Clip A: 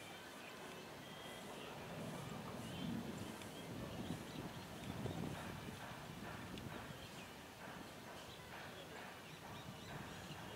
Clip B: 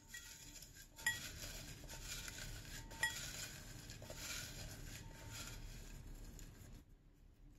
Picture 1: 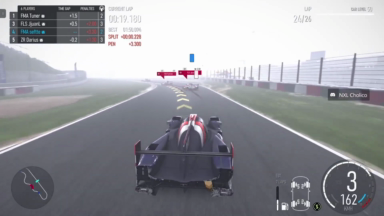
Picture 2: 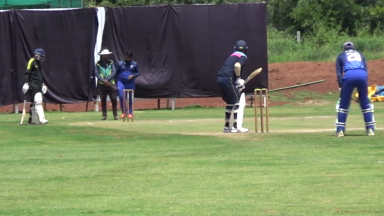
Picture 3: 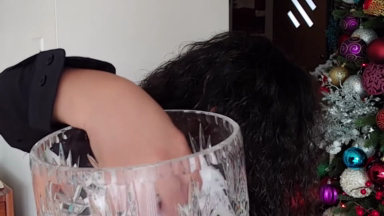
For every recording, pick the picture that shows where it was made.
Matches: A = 2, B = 3